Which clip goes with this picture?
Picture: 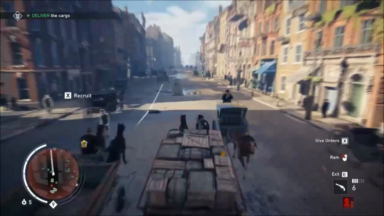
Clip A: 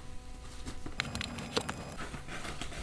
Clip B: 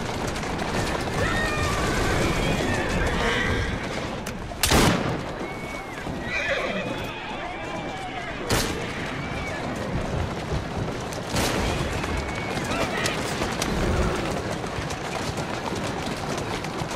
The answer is B